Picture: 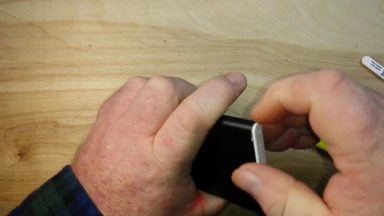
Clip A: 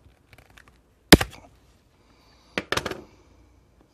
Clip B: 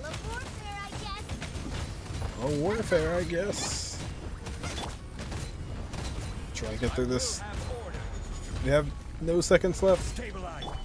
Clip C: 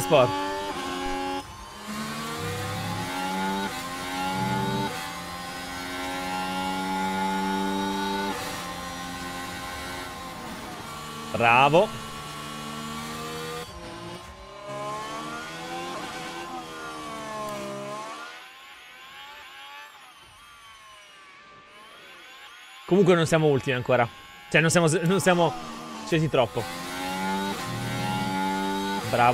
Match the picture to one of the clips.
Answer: A